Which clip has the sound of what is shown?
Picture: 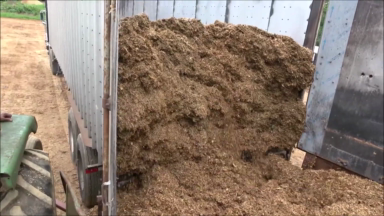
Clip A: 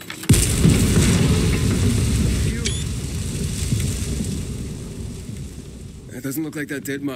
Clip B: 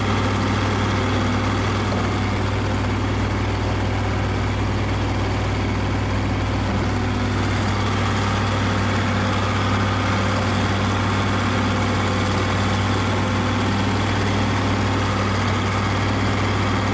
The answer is B